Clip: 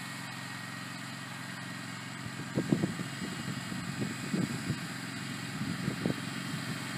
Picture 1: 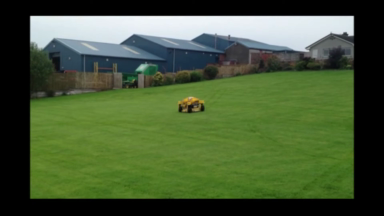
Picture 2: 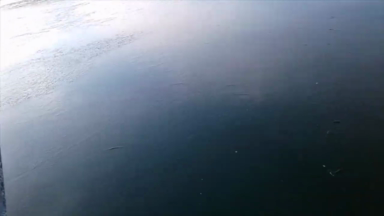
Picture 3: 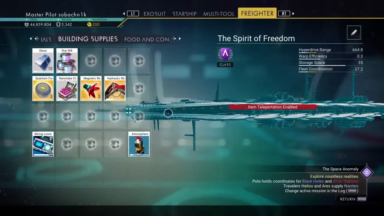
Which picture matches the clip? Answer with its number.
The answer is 1